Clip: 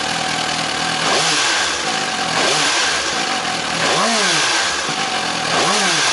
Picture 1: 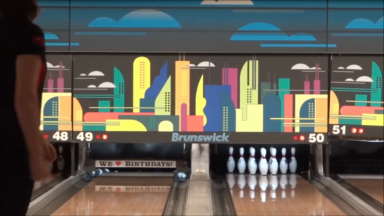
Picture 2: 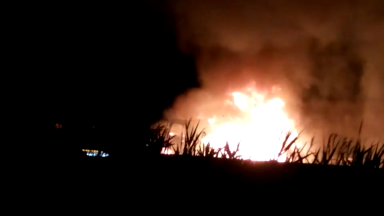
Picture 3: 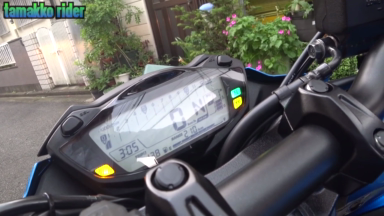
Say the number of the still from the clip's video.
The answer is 3